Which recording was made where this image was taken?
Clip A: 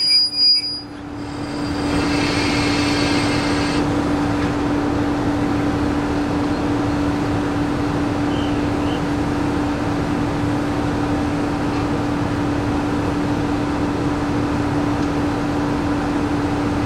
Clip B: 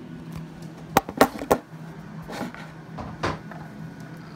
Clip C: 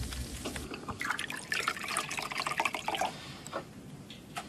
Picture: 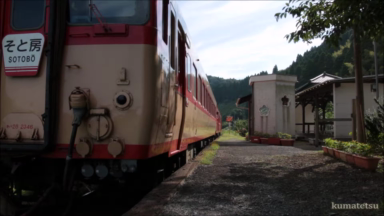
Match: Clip A